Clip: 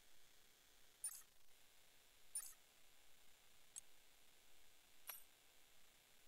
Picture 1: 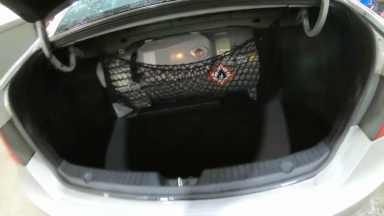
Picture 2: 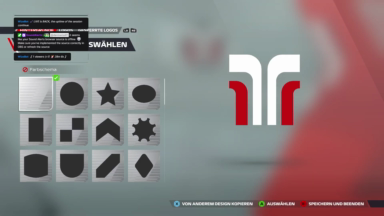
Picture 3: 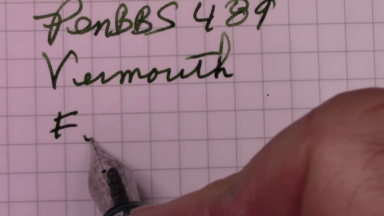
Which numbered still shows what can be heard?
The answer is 2